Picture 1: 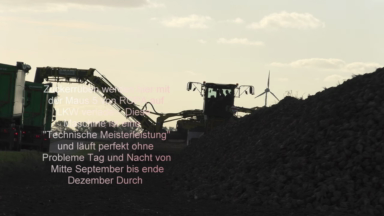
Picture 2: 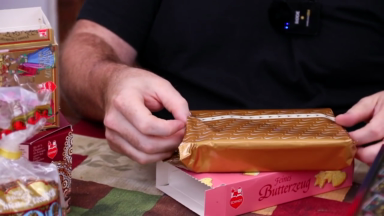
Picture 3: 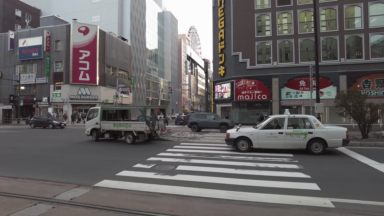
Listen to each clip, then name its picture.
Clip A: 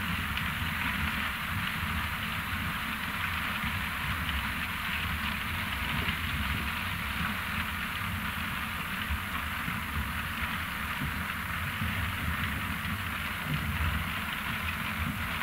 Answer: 1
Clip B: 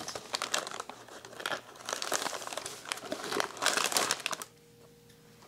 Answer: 2